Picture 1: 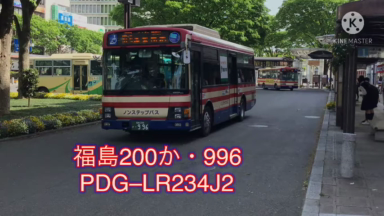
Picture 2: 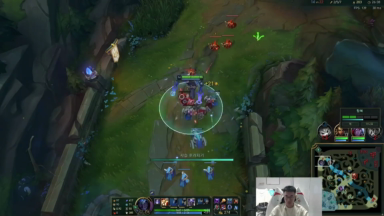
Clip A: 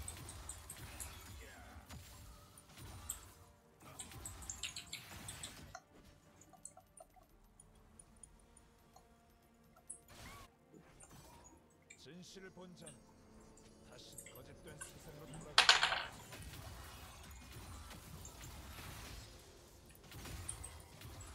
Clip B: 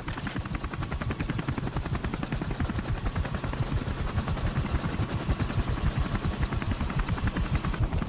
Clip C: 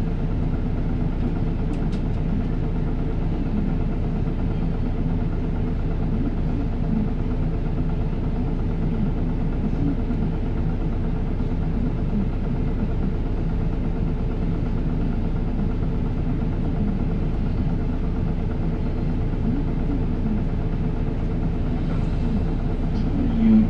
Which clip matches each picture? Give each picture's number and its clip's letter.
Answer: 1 C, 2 A